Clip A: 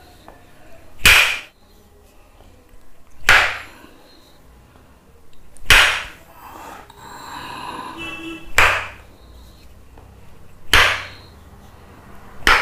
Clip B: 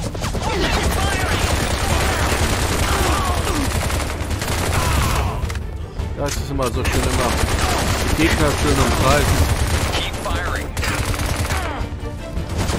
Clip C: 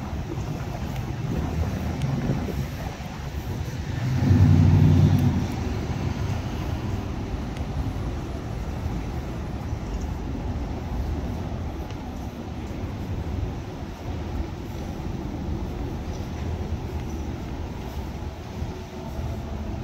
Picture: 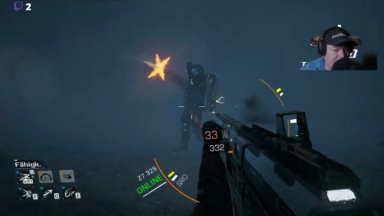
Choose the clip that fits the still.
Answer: B